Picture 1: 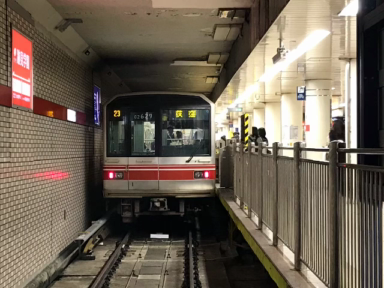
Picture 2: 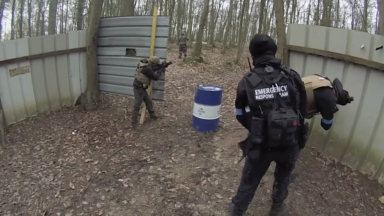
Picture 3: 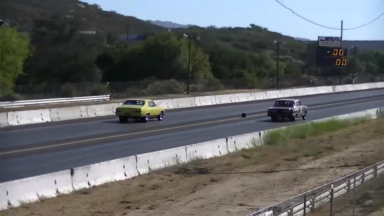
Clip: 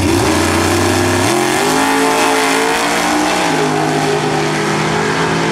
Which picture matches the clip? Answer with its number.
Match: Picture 3